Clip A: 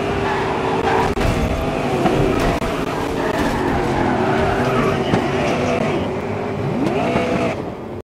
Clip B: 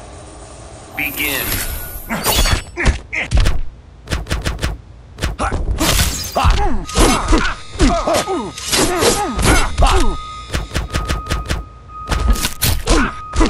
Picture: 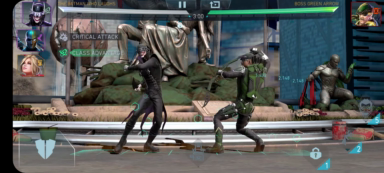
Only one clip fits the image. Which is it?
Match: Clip B